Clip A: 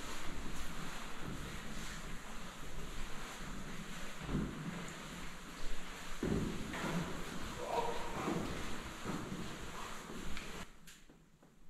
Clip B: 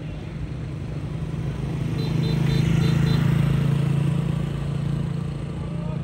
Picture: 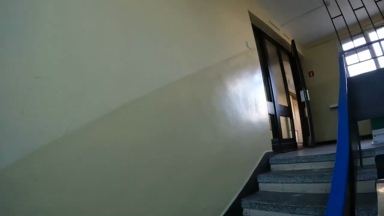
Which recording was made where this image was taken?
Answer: A